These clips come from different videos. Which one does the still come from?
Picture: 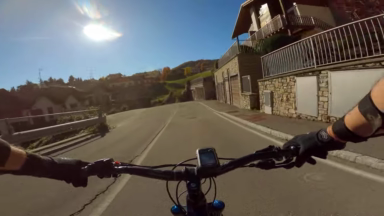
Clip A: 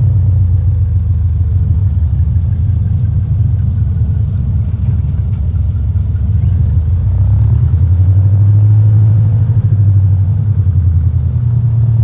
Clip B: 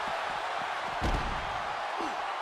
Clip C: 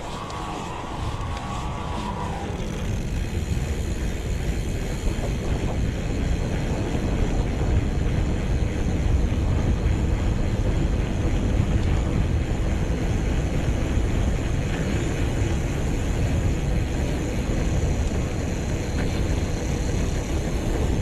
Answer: C